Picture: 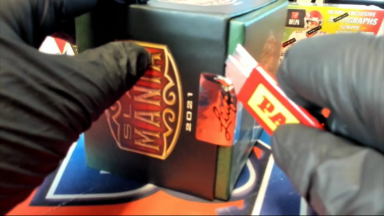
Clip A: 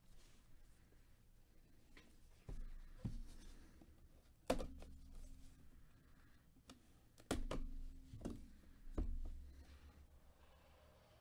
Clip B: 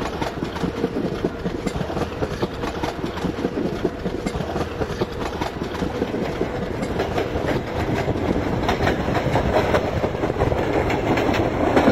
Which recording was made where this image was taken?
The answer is A